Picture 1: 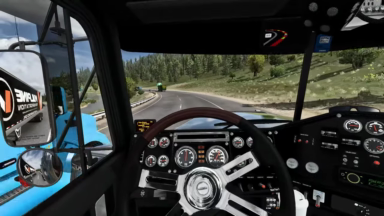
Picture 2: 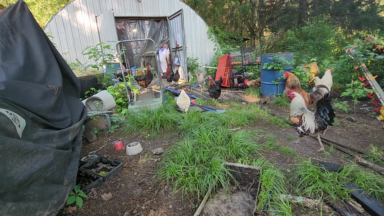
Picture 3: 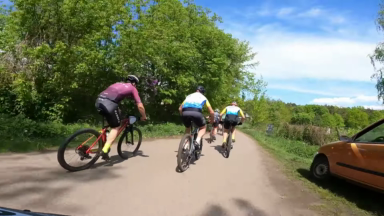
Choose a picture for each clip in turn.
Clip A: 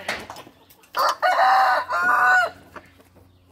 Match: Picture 2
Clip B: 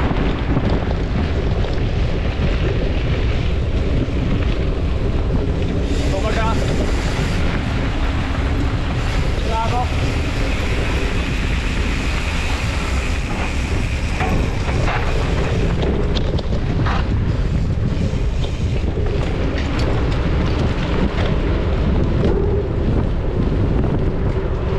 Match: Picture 3